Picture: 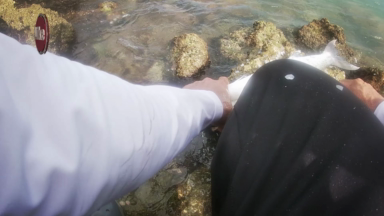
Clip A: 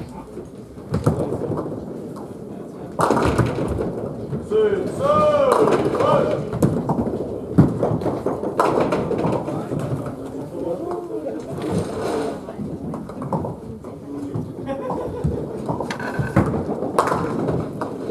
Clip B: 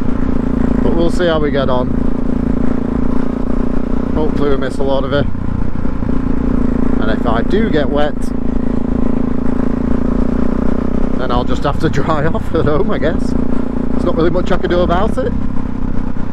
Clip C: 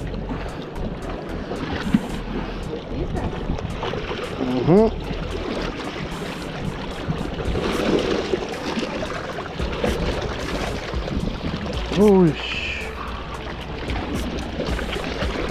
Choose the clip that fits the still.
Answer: C